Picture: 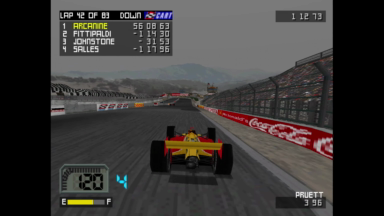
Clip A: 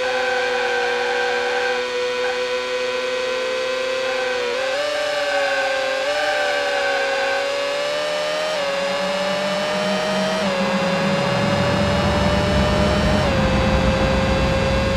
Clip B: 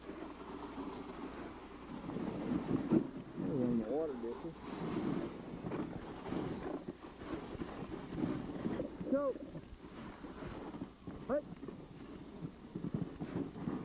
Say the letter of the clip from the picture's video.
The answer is A